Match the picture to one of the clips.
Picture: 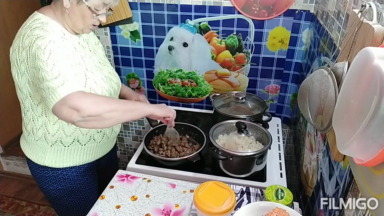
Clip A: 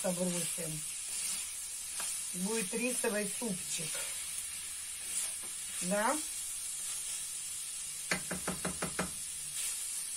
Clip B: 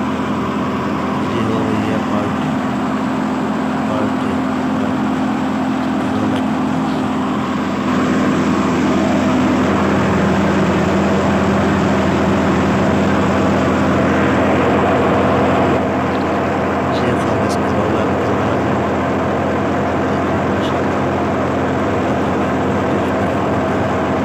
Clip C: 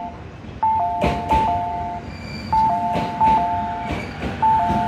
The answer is A